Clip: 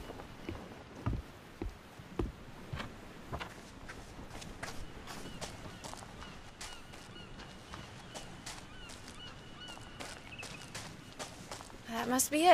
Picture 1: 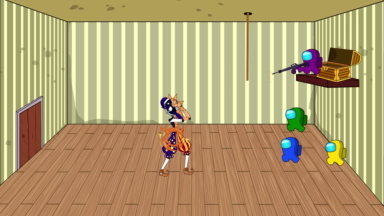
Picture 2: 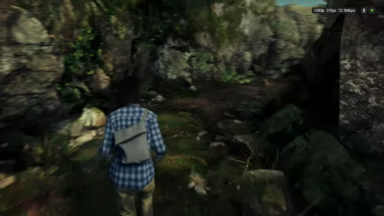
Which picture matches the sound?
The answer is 2